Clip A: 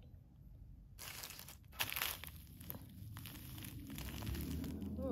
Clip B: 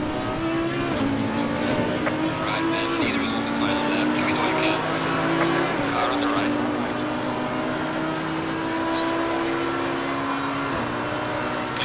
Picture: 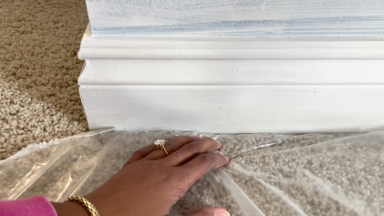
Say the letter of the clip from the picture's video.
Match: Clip A